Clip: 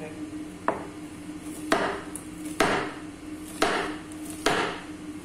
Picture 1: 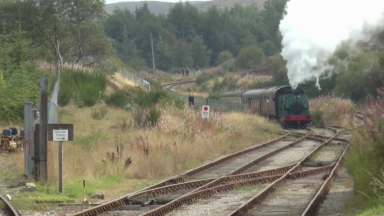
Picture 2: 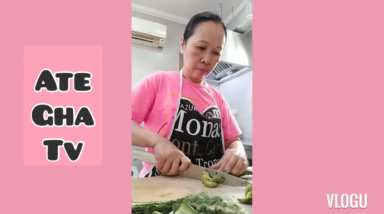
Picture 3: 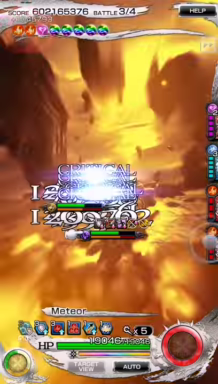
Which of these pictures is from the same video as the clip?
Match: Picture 2